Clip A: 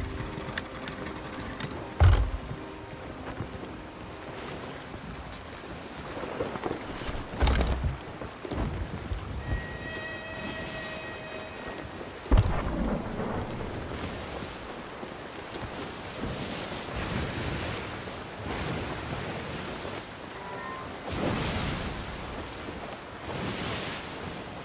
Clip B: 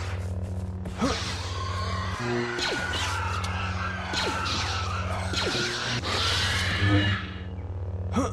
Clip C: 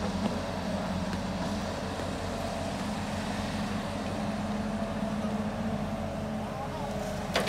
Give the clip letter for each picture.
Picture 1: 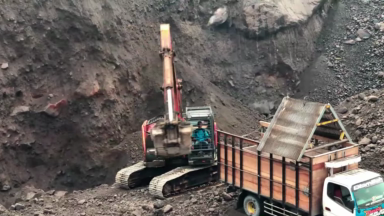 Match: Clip C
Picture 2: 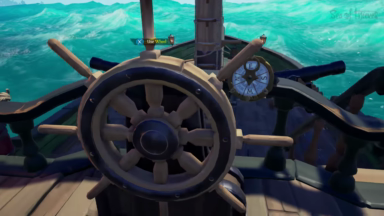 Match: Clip A